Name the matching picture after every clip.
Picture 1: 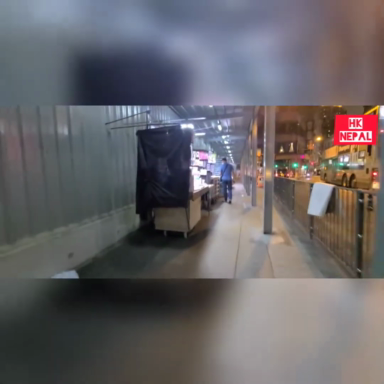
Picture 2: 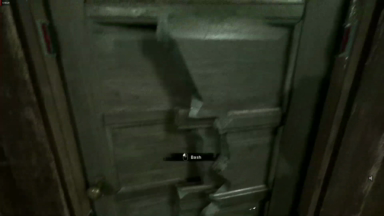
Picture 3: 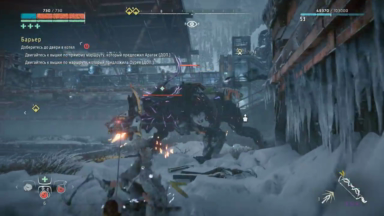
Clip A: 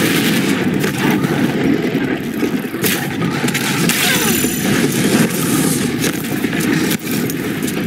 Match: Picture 3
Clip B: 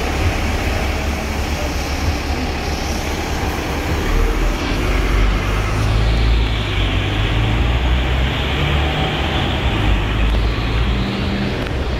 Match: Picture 1